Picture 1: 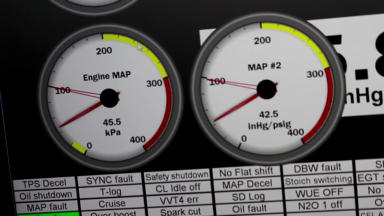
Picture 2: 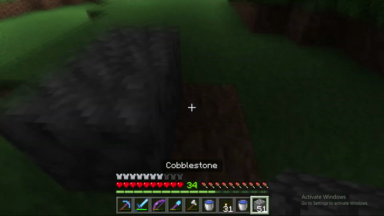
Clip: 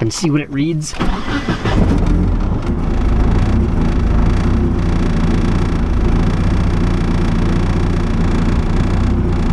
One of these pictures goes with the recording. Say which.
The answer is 1